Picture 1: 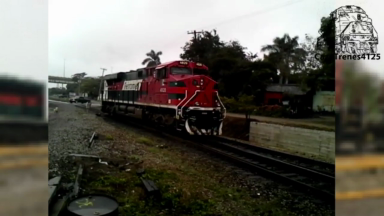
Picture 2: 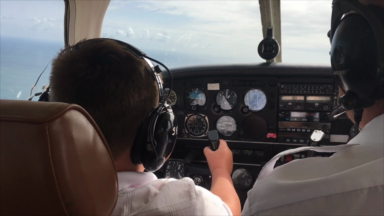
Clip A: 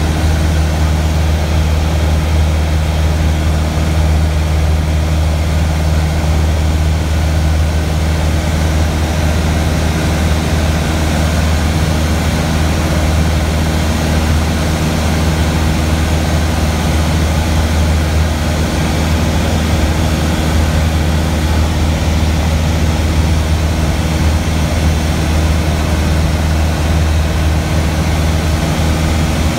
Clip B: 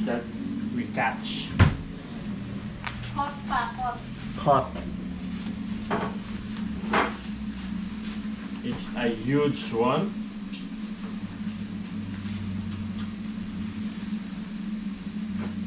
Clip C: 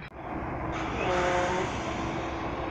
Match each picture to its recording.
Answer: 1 C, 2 A